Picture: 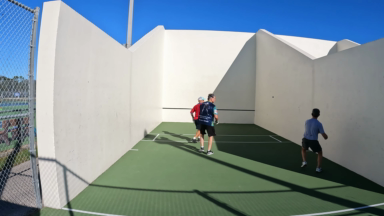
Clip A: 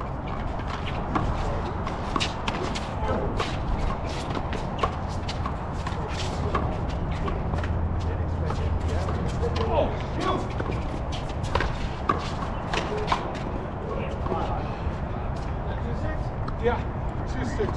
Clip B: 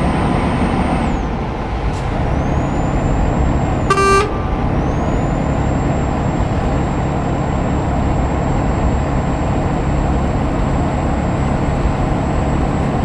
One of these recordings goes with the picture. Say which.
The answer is A